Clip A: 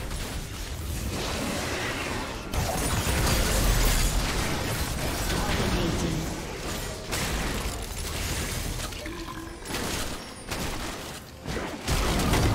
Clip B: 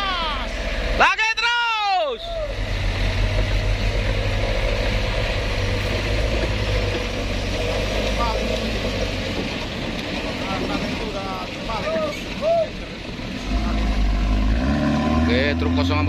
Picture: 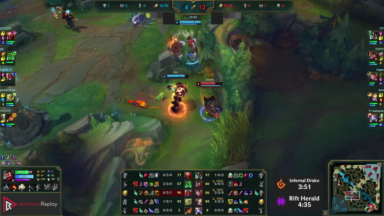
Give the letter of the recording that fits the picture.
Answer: A